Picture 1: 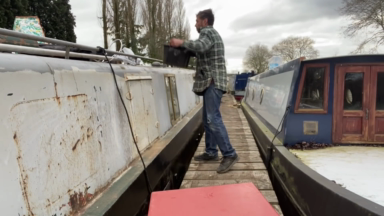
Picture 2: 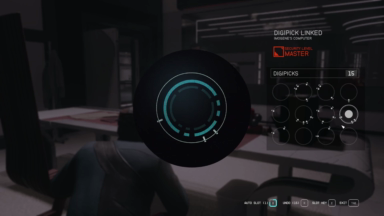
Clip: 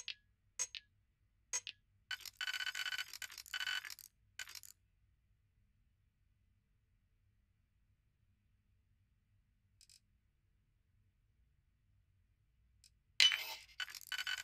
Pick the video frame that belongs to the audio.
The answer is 2